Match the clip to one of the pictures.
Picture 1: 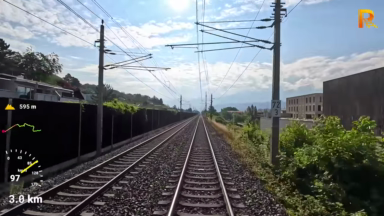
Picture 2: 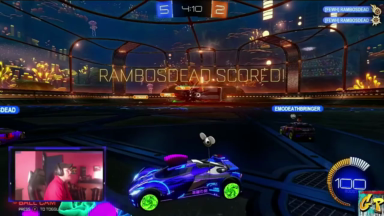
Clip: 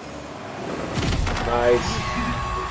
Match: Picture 2